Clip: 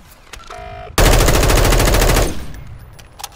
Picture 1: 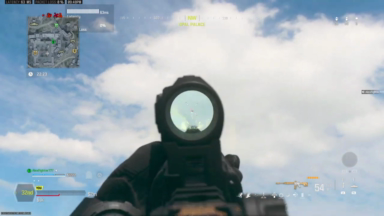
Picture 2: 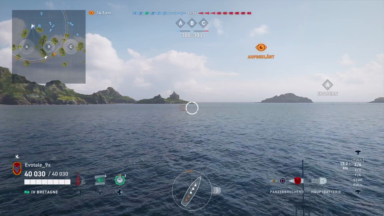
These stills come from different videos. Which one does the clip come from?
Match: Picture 1